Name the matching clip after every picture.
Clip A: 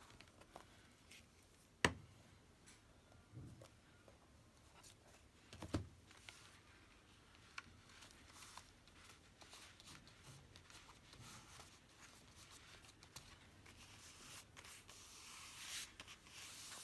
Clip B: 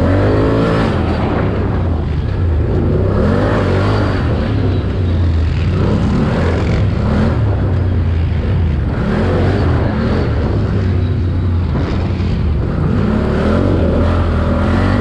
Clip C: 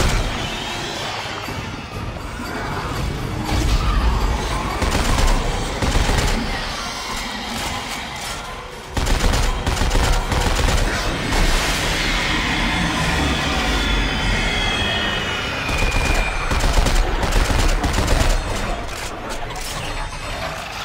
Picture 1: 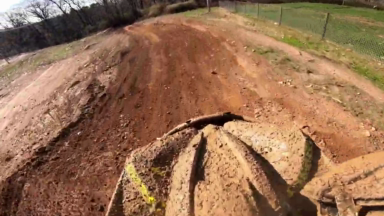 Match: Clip B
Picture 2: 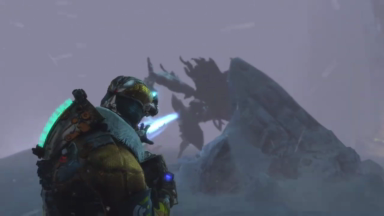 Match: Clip C